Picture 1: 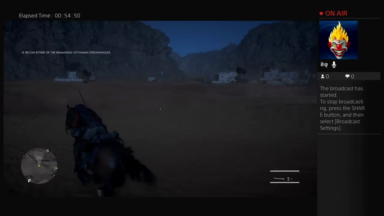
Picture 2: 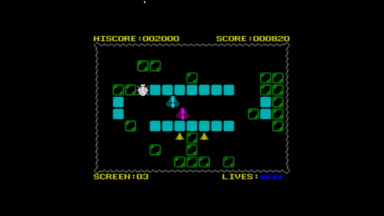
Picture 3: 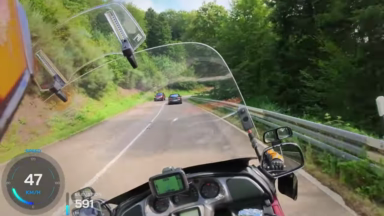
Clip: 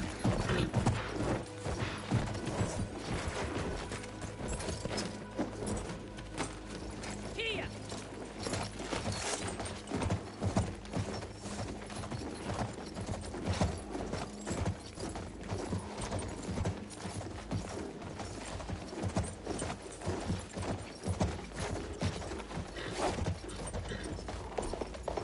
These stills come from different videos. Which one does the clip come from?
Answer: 1